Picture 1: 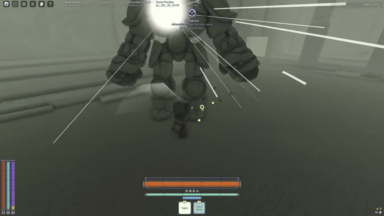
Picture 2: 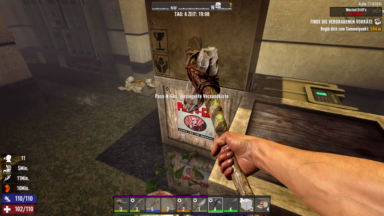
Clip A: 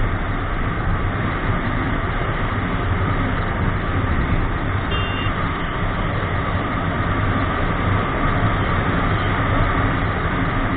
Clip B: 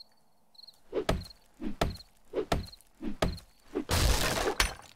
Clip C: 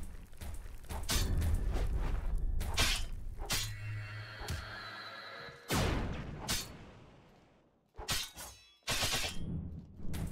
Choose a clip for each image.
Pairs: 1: C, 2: B